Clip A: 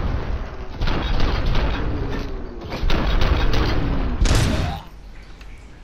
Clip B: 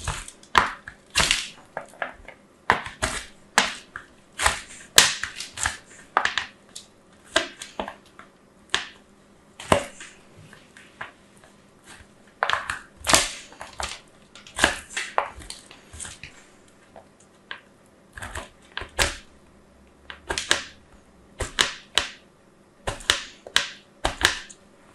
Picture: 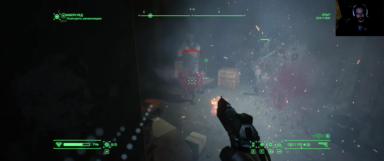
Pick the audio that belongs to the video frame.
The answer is A